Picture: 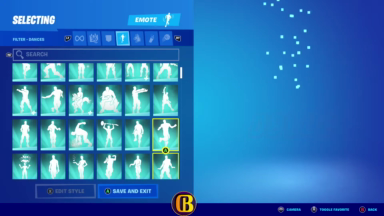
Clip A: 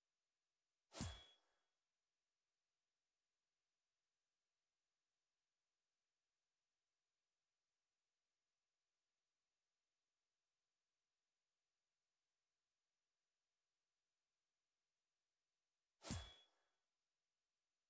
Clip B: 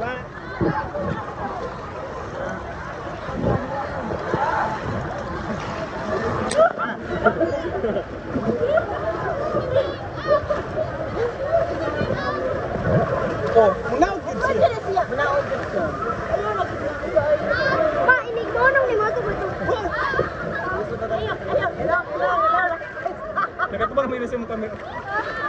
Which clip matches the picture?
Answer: A